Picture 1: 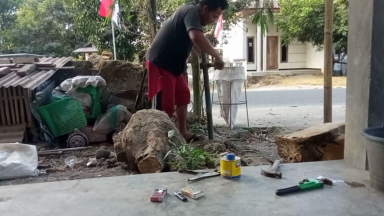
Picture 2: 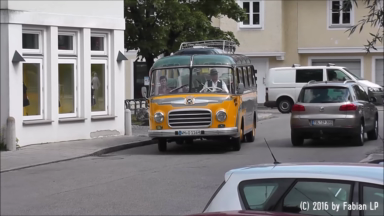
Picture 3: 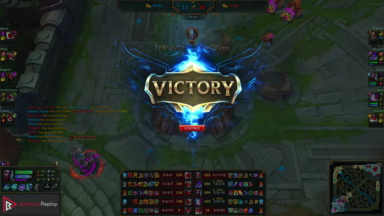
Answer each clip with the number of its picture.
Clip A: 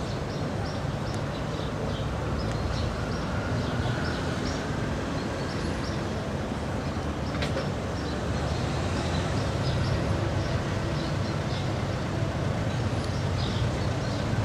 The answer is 2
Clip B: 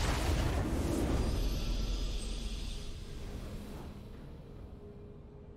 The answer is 3